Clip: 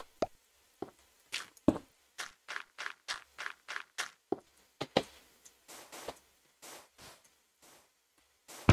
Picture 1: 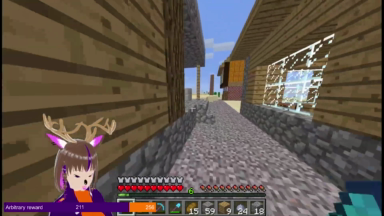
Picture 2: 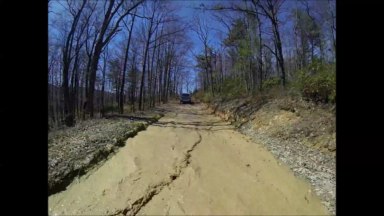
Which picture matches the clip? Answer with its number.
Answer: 1